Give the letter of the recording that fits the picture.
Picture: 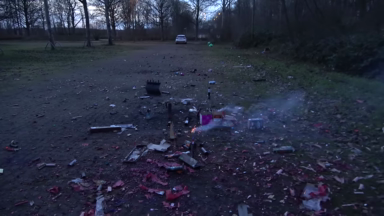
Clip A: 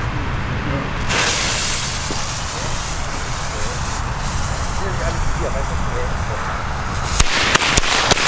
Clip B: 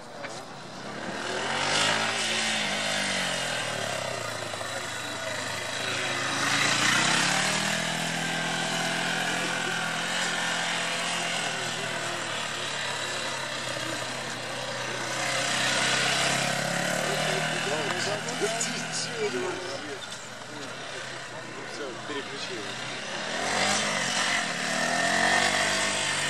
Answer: A